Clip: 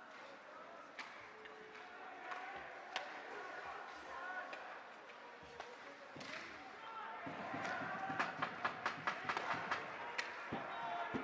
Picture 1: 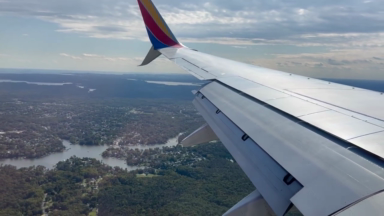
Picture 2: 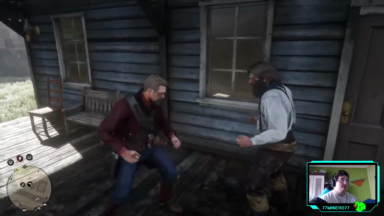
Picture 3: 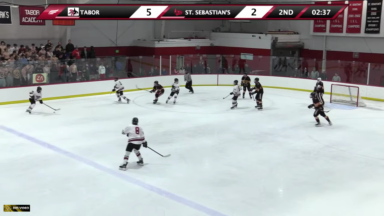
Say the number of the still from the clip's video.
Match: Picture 3